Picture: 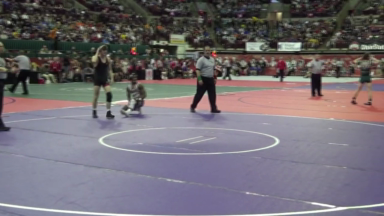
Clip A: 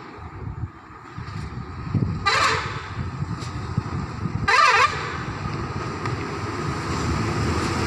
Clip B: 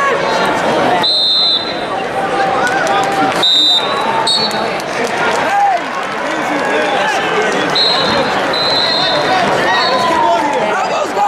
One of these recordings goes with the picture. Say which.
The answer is B